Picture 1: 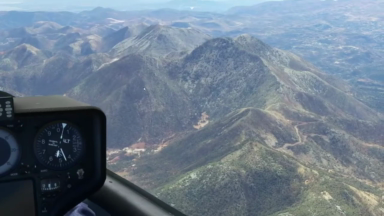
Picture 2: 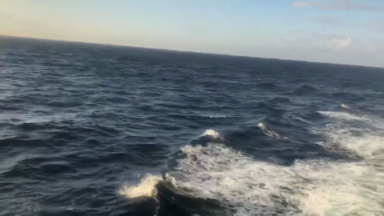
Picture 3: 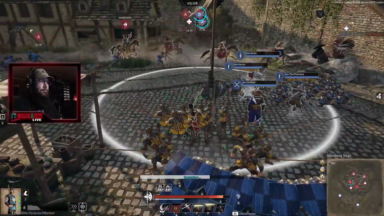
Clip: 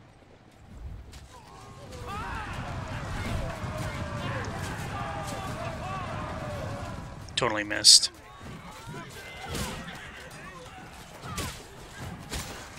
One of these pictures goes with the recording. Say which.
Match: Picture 3